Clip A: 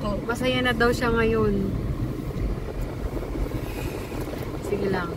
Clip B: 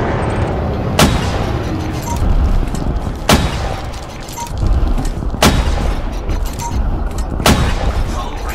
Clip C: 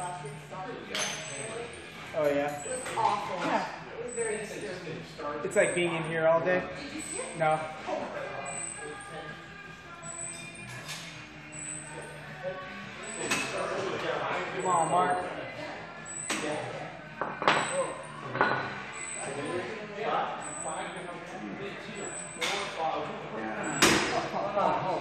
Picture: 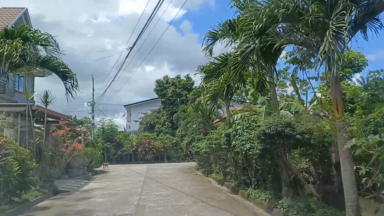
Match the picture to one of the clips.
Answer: A